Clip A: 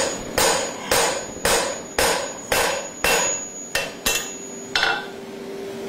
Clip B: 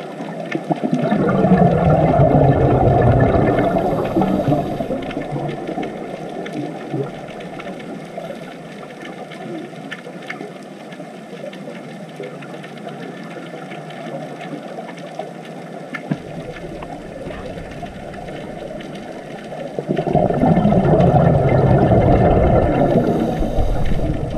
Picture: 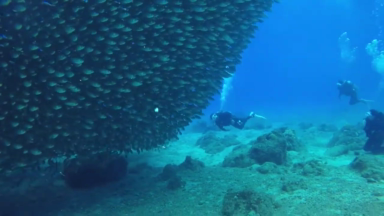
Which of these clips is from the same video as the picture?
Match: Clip B